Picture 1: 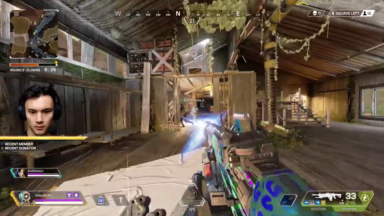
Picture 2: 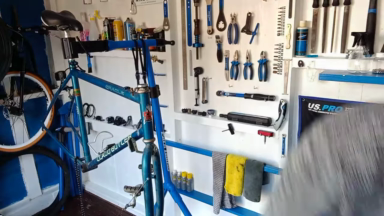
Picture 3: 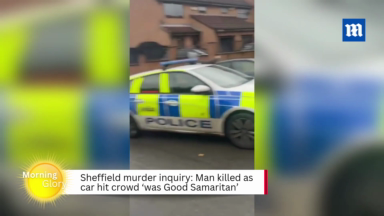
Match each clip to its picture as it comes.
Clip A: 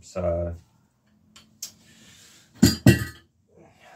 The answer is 2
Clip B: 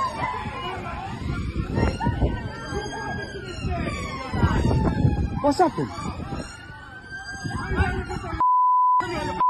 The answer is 3